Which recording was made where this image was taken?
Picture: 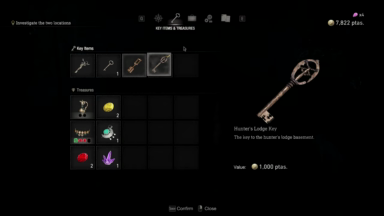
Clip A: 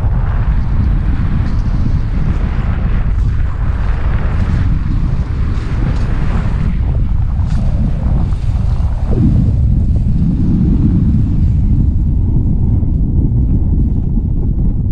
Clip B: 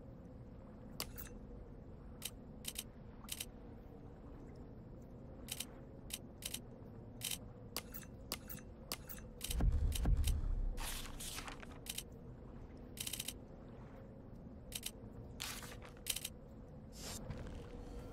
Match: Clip B